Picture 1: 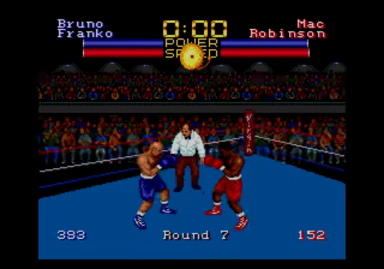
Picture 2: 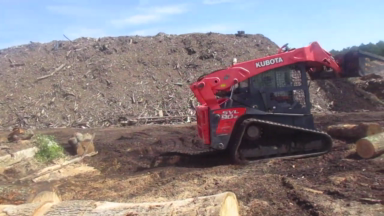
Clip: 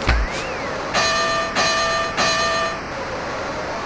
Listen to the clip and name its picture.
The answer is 1